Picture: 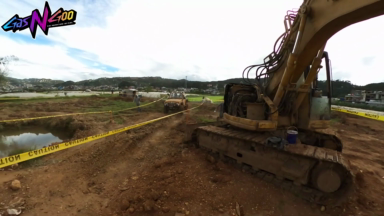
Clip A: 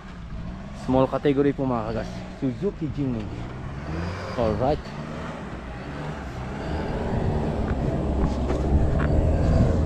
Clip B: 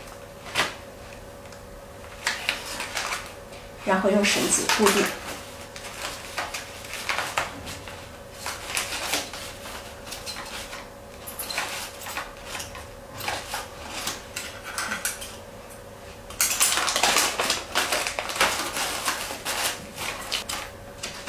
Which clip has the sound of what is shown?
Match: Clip A